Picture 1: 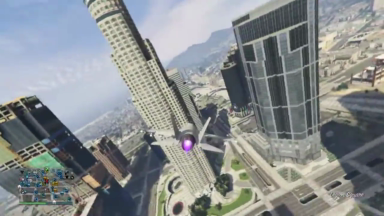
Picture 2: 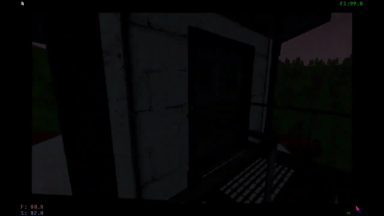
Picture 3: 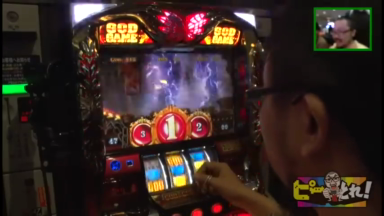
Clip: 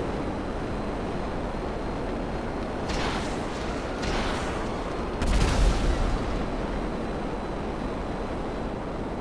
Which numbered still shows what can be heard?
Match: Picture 1